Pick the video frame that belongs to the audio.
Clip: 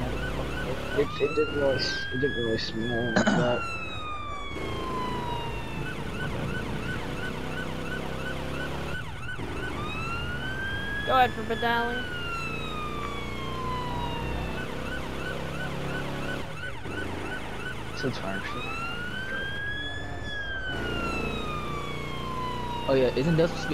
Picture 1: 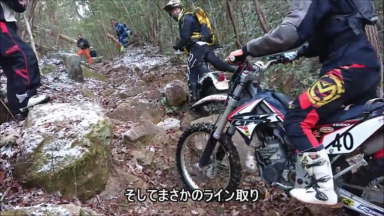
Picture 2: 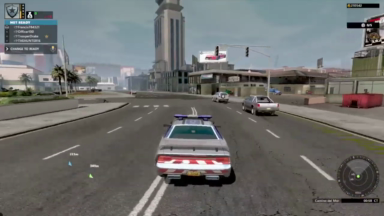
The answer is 2